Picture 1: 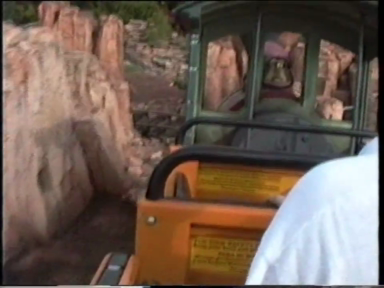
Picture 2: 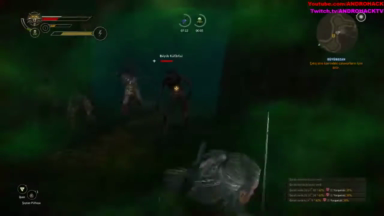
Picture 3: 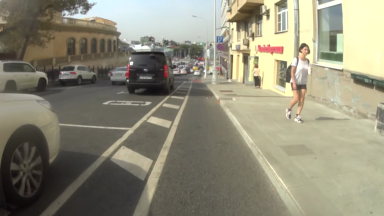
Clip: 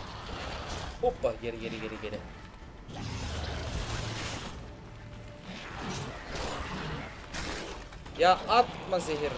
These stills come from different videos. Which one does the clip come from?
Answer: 2